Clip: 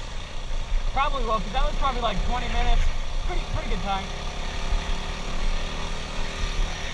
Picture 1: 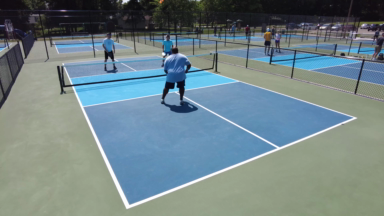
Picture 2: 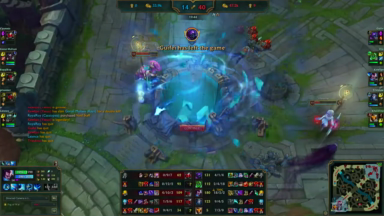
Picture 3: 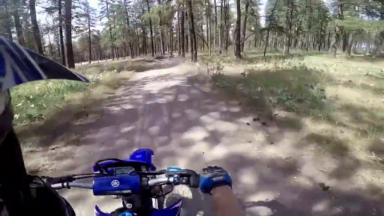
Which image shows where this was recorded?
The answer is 3